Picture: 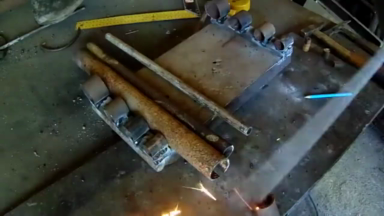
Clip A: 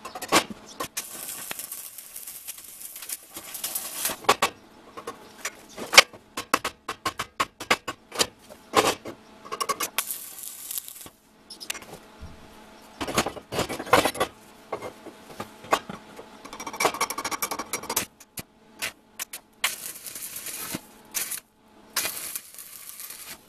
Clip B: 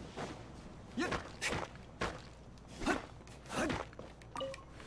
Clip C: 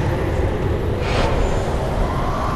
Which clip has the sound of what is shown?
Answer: A